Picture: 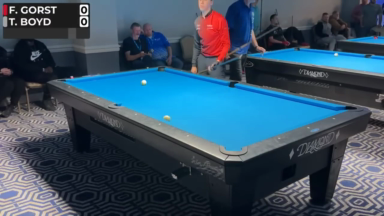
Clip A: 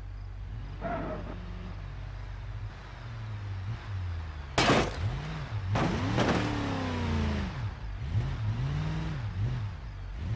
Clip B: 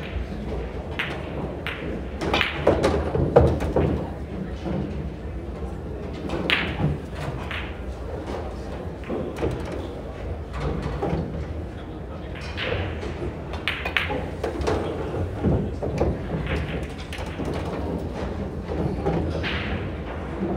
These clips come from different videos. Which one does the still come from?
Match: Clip B